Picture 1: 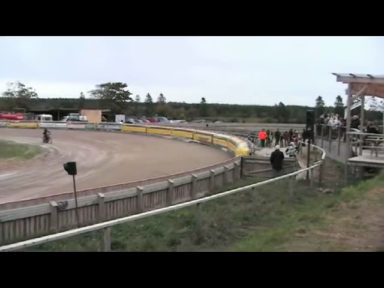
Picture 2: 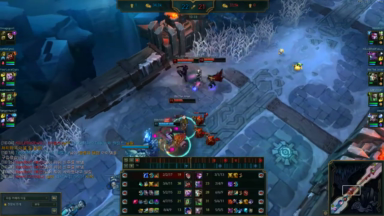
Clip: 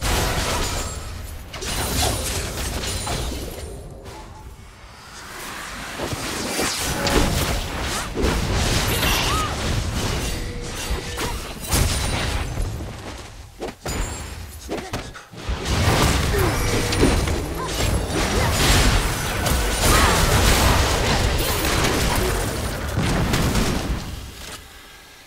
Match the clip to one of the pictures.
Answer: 2